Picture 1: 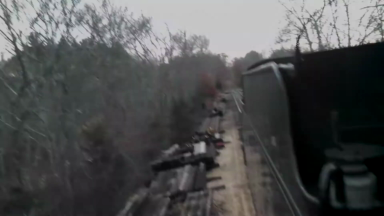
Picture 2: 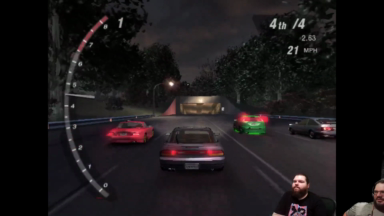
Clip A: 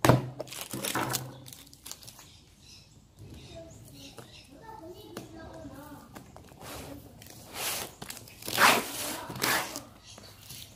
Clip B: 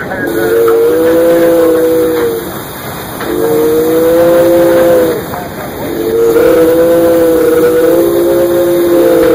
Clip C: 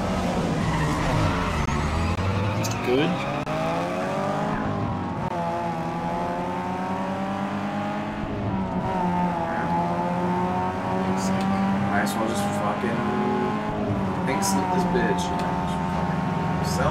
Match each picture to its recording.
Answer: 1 B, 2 C